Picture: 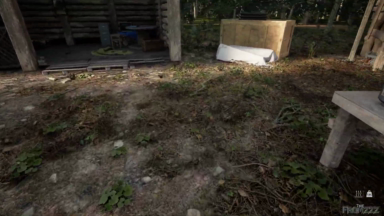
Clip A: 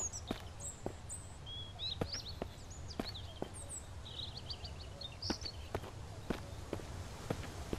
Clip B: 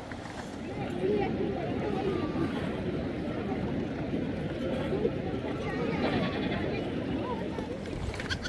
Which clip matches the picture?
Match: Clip A